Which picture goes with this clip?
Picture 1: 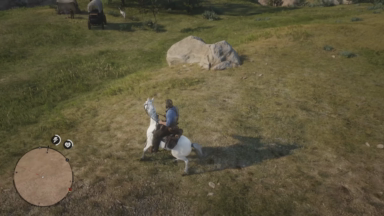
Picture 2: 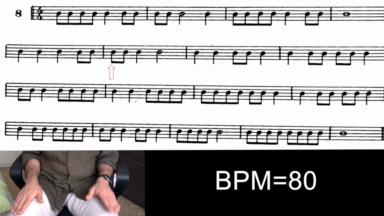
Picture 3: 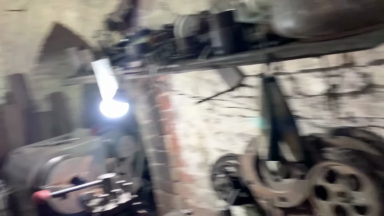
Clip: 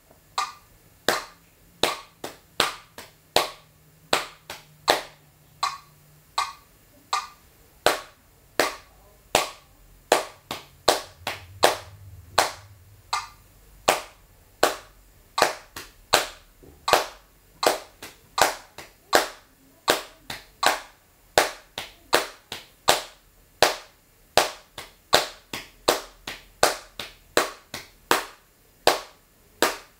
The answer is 2